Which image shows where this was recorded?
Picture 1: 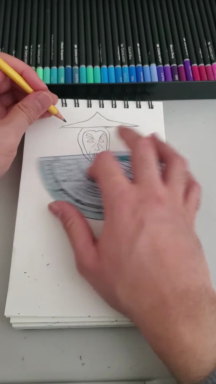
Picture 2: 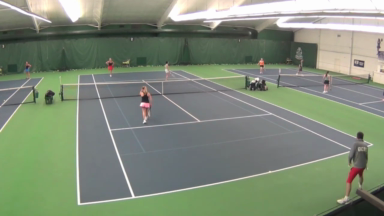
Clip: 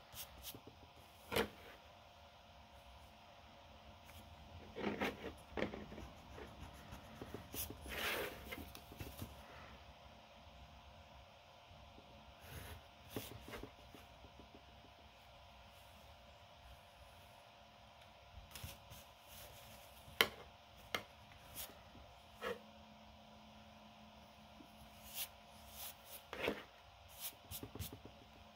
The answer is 1